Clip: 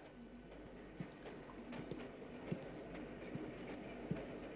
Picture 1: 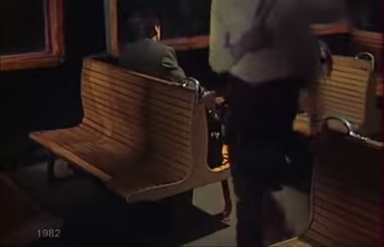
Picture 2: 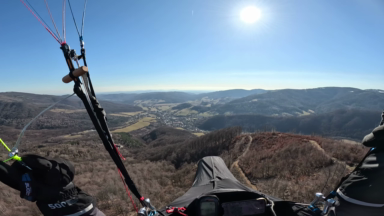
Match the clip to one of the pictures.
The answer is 1